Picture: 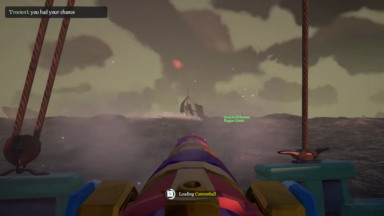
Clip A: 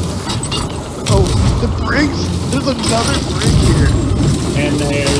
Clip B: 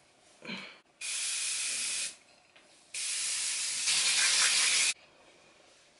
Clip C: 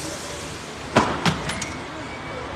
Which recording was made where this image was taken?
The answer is A